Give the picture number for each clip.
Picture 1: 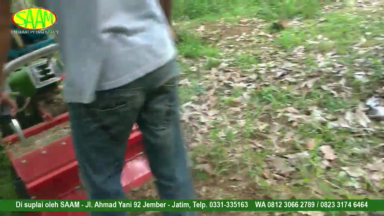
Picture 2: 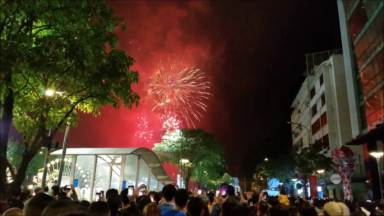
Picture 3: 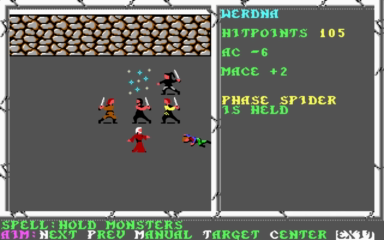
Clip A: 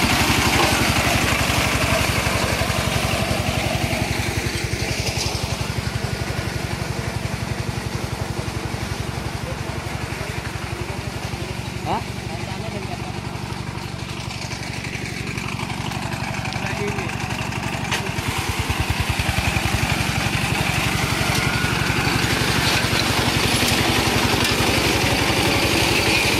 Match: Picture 1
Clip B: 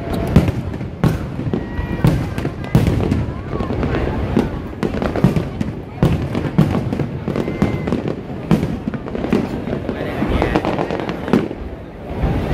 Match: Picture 2